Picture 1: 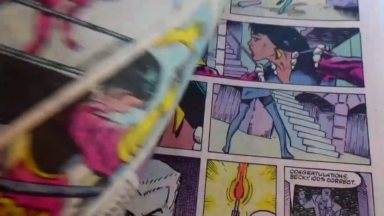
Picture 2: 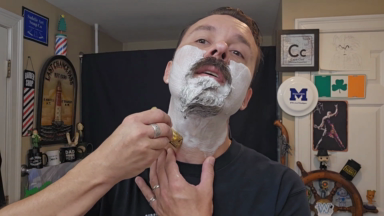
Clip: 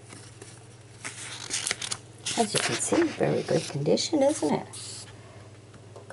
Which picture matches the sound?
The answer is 1